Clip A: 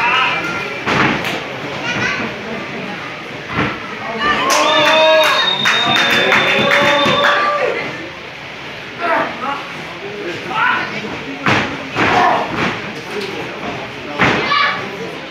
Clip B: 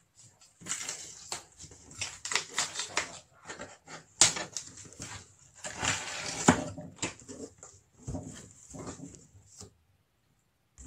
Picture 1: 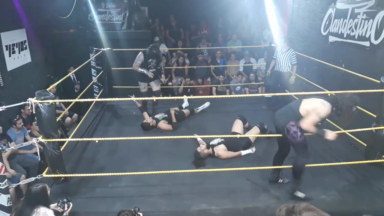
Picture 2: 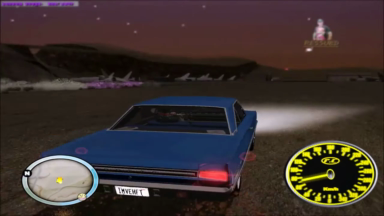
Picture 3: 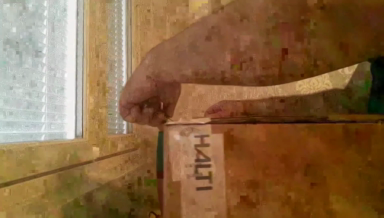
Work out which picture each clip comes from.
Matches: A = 1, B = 3